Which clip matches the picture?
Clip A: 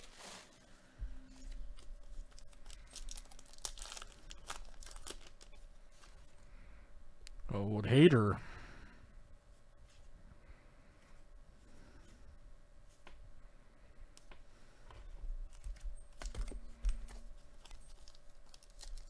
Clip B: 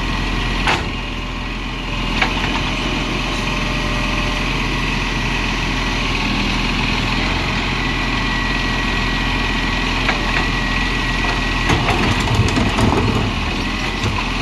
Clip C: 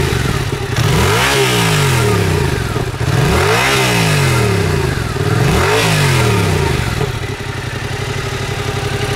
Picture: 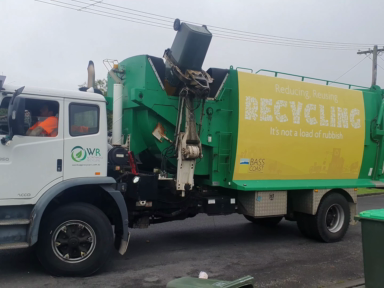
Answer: B